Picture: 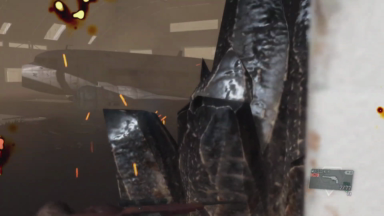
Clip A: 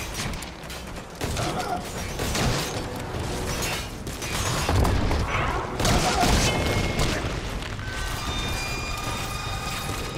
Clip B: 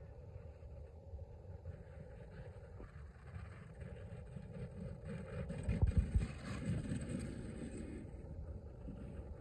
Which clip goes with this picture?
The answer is A